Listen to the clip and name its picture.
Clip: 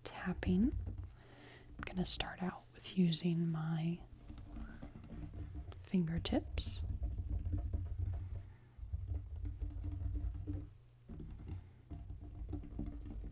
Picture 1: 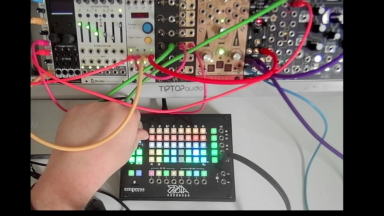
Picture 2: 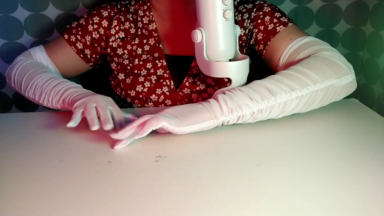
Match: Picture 2